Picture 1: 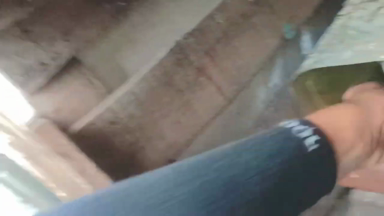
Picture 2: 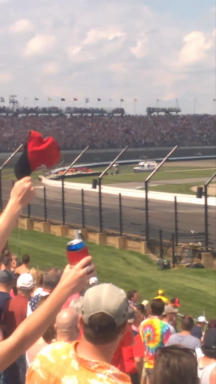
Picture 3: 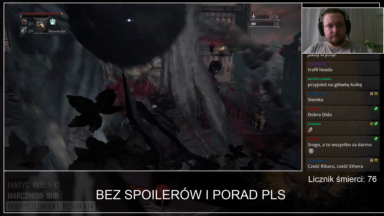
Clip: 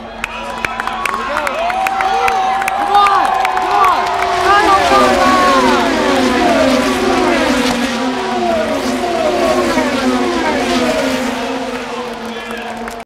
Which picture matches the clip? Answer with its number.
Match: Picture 2